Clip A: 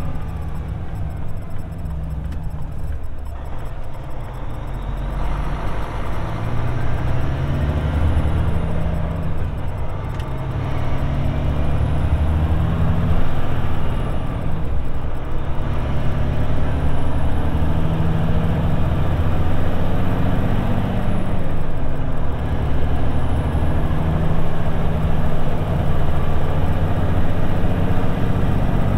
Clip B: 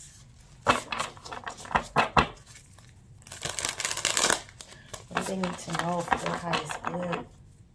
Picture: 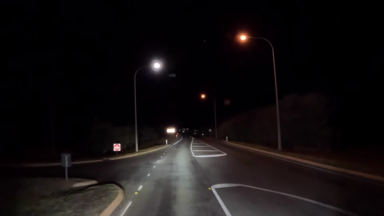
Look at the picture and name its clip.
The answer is A